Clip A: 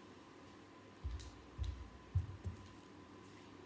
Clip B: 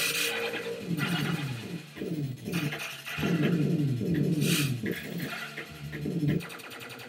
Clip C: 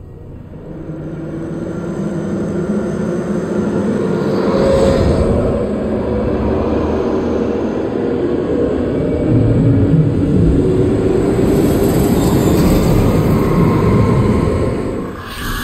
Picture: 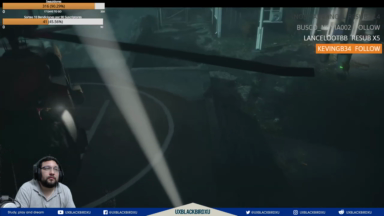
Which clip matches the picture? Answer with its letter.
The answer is C